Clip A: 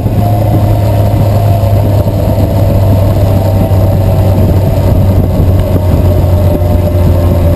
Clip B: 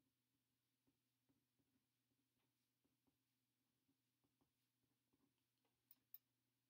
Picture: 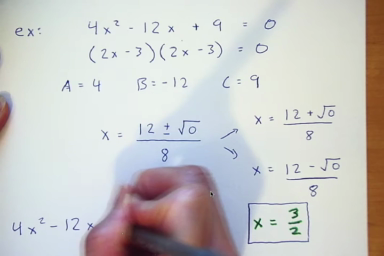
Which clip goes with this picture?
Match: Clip B